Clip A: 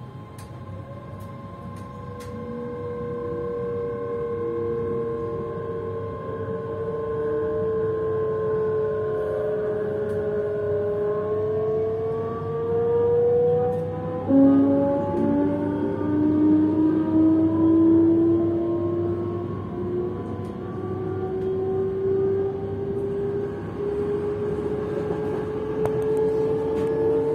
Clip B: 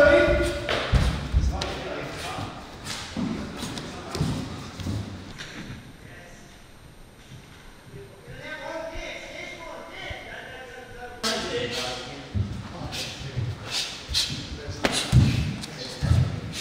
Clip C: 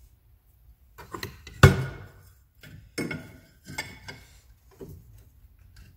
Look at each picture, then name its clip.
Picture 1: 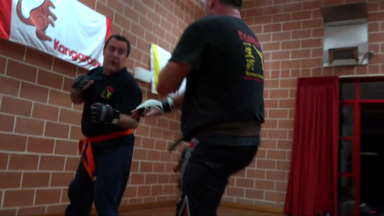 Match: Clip B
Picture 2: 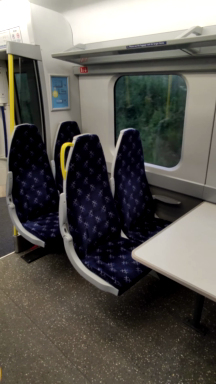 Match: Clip A